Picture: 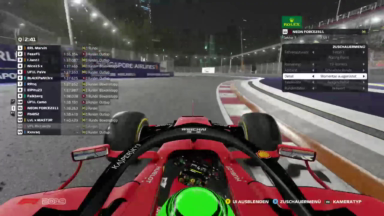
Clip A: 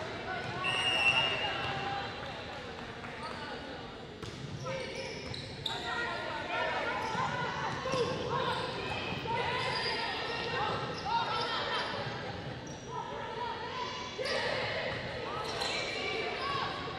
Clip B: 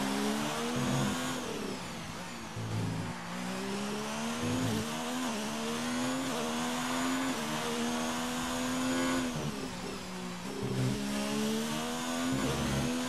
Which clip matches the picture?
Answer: B